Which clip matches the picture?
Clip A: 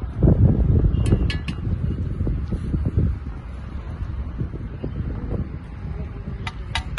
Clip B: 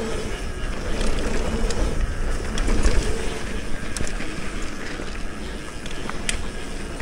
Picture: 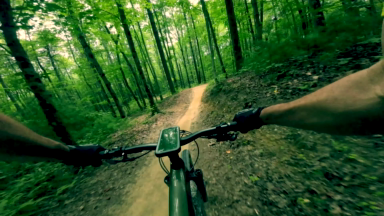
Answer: B